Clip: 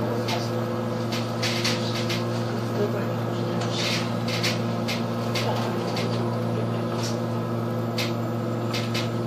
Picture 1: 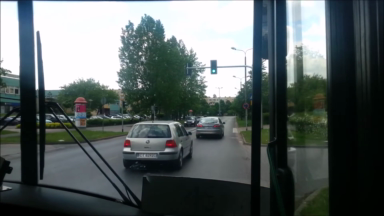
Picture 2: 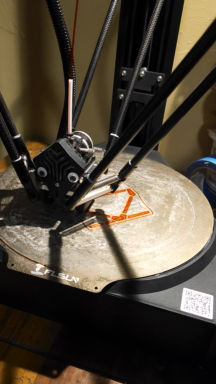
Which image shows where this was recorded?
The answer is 1